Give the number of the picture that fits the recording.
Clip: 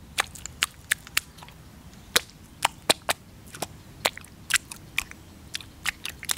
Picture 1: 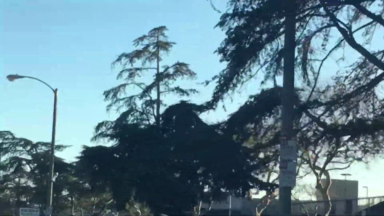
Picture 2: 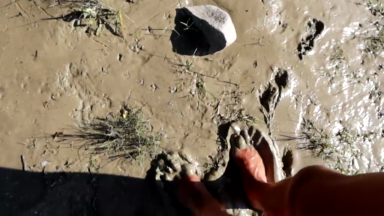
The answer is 2